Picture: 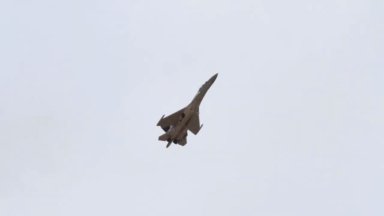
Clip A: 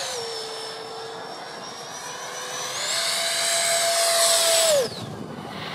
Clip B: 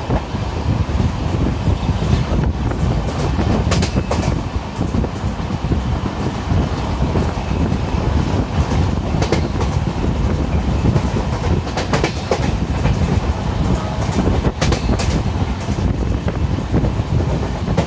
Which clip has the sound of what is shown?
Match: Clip A